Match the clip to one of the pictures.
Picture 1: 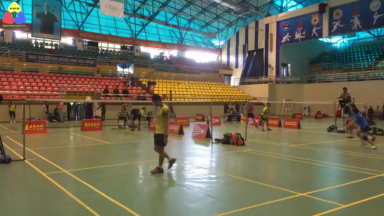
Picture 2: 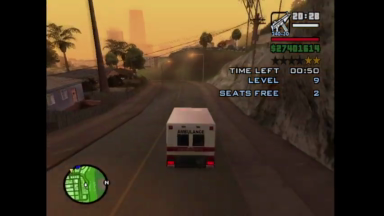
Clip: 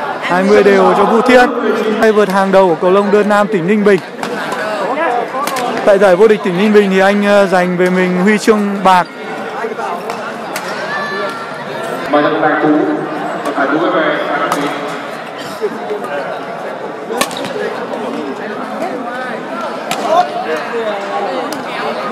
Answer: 1